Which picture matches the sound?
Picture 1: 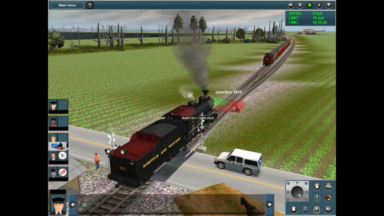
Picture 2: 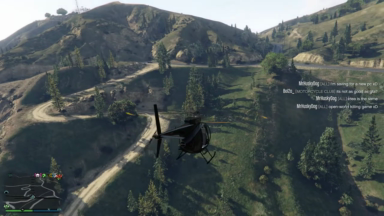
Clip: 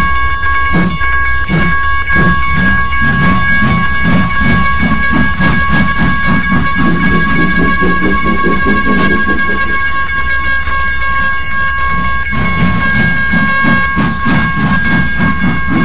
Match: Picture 1